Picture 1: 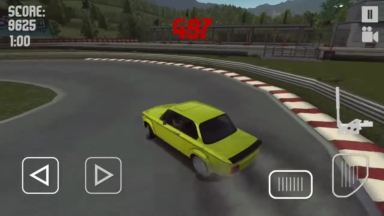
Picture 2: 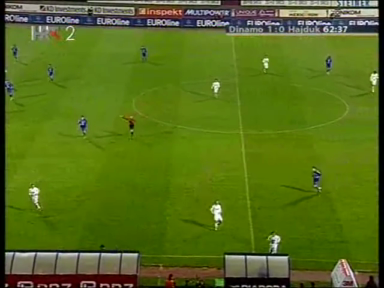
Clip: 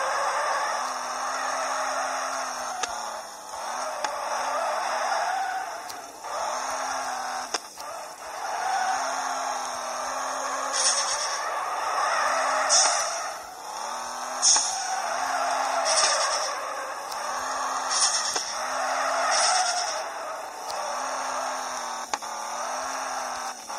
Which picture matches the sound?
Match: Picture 1